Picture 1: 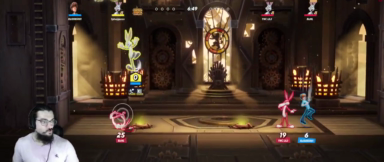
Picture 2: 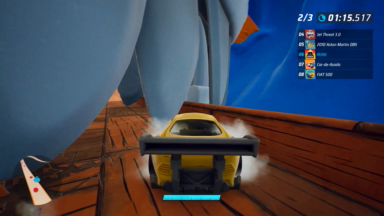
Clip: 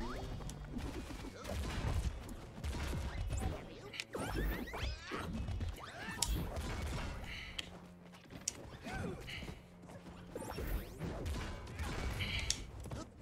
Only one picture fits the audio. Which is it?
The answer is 1